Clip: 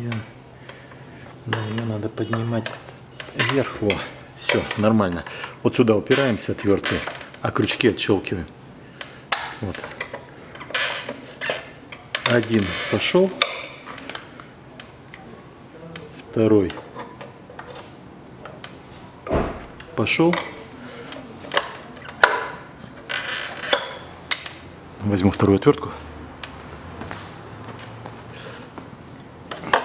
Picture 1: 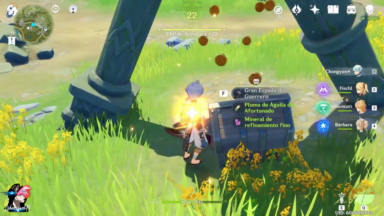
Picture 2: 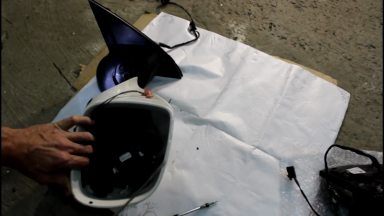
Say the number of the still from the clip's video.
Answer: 2